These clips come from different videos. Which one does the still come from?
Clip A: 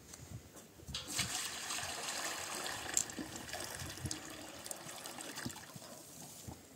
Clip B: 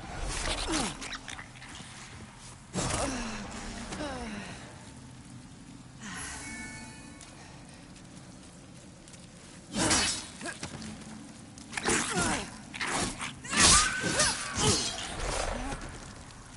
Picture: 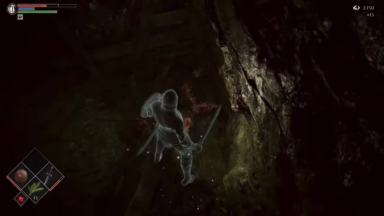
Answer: B